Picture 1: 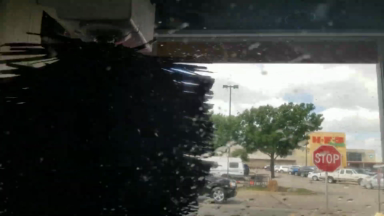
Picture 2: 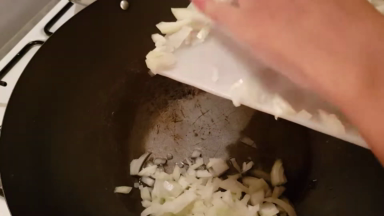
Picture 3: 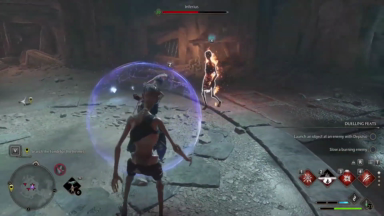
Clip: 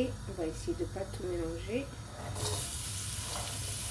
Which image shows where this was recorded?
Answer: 2